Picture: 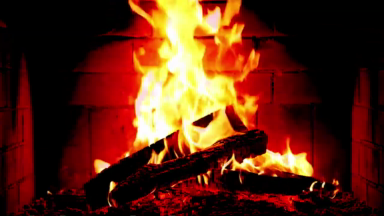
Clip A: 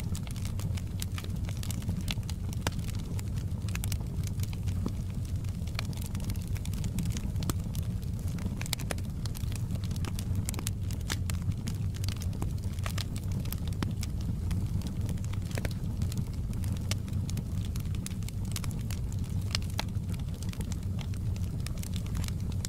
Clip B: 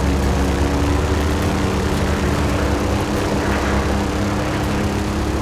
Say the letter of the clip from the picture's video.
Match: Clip A